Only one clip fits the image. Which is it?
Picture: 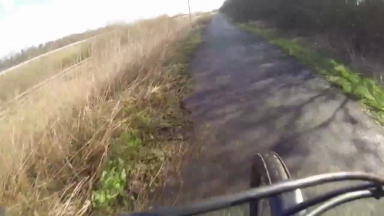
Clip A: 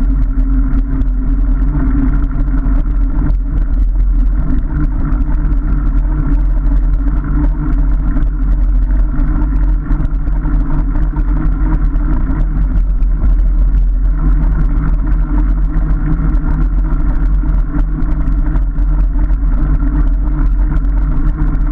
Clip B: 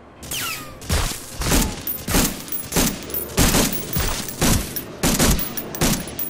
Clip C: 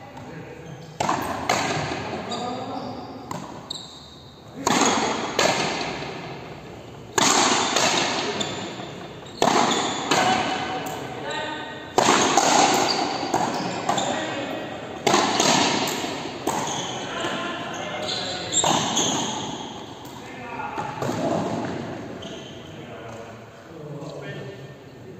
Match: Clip A